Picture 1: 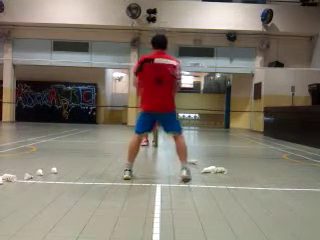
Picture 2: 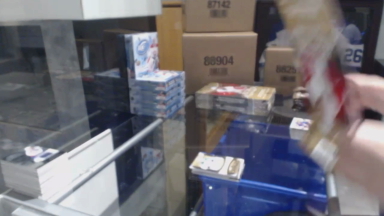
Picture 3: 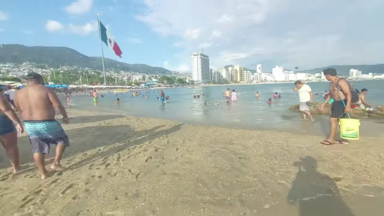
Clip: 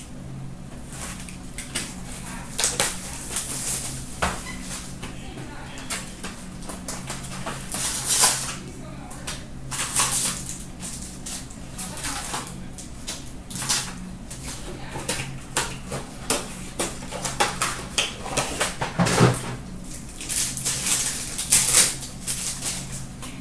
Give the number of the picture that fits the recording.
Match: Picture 2